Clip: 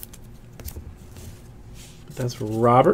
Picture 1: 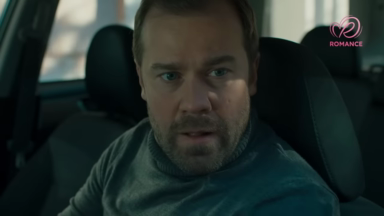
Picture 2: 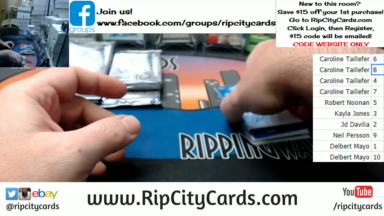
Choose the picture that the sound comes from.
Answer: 2